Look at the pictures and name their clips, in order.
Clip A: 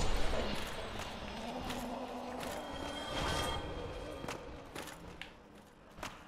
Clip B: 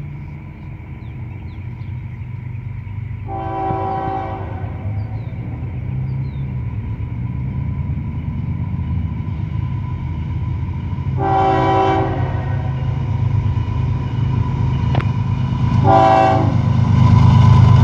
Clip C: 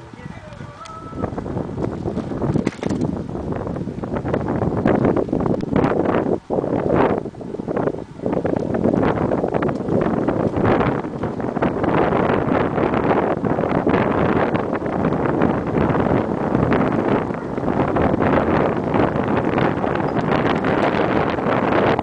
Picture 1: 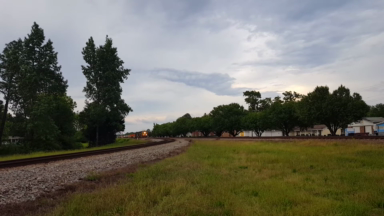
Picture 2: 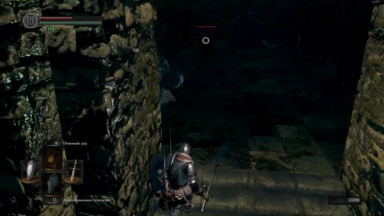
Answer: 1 B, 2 A